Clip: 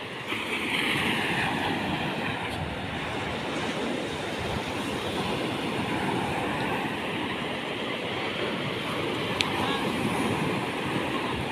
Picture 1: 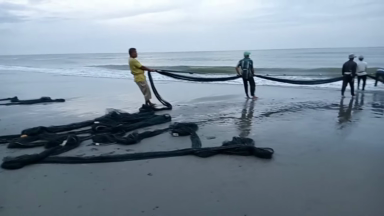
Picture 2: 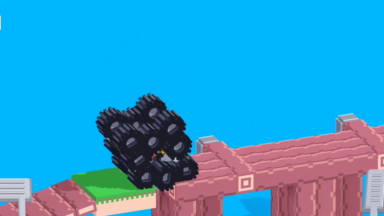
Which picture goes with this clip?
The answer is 1